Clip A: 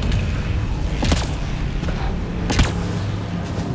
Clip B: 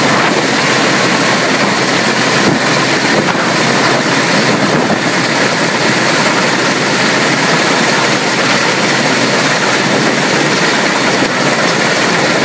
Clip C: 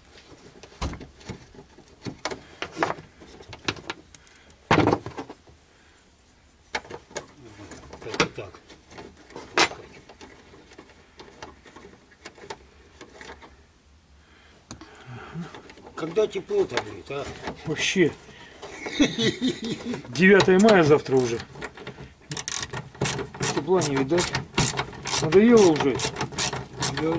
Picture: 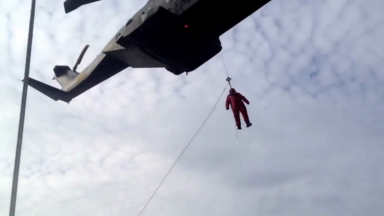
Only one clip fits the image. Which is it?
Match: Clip B